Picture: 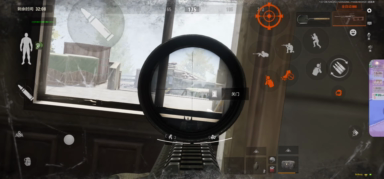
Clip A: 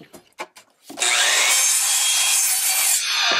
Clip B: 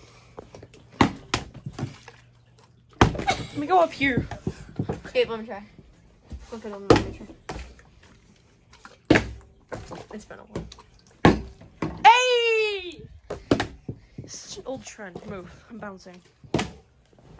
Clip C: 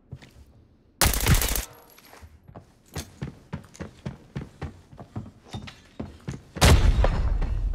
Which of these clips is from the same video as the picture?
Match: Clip C